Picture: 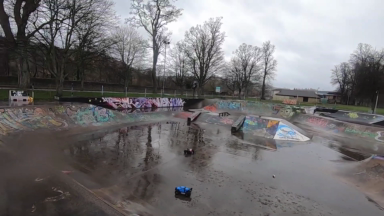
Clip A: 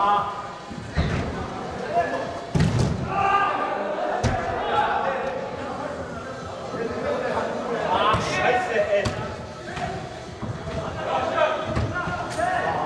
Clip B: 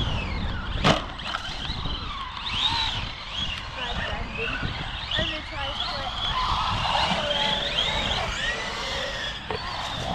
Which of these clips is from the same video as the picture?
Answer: B